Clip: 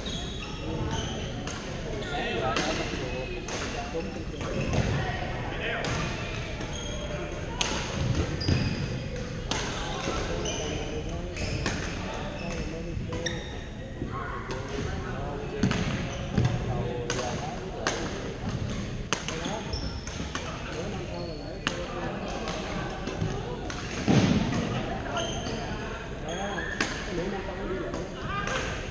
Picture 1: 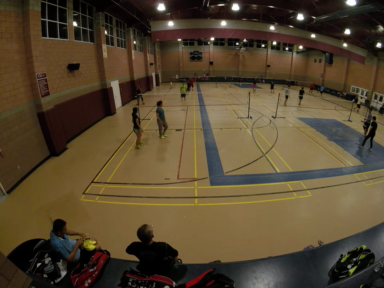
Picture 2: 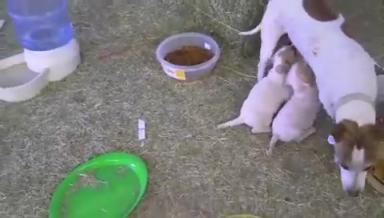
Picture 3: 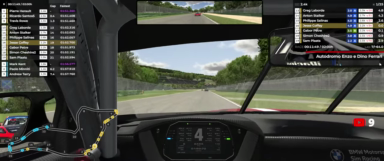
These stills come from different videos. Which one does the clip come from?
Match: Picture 1